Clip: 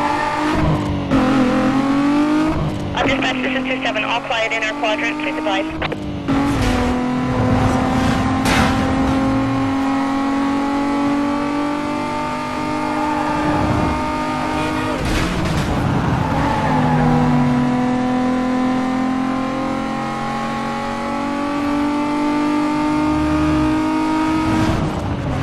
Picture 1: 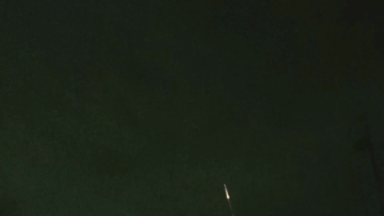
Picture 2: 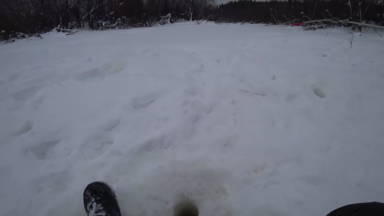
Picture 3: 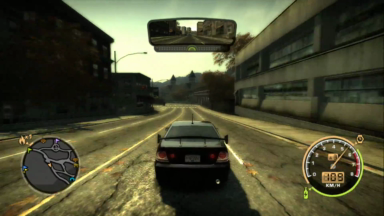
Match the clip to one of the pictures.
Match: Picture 3